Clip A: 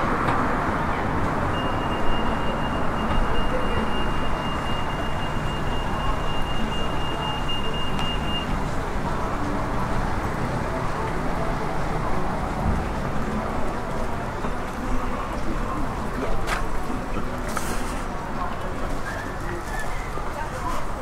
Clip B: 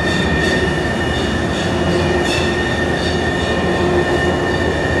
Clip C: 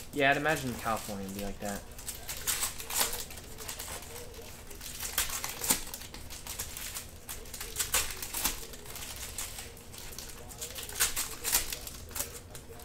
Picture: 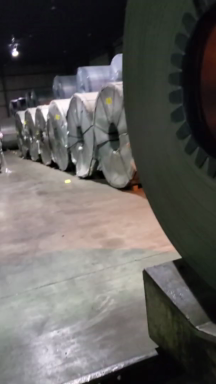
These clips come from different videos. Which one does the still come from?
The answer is B